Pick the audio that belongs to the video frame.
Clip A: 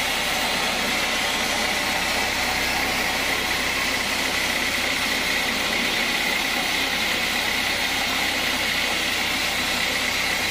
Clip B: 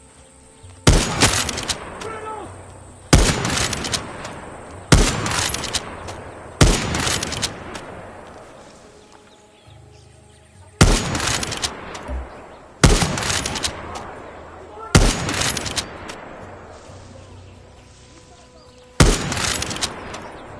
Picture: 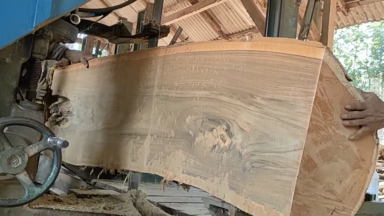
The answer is A